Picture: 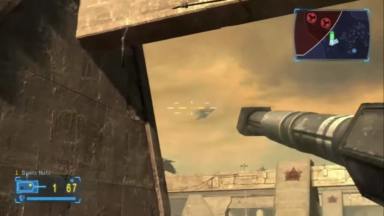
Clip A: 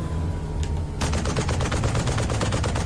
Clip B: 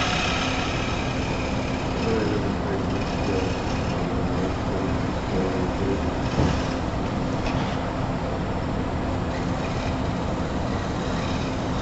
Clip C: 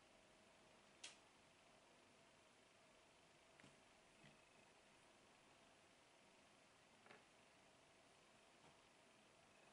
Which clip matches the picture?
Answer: A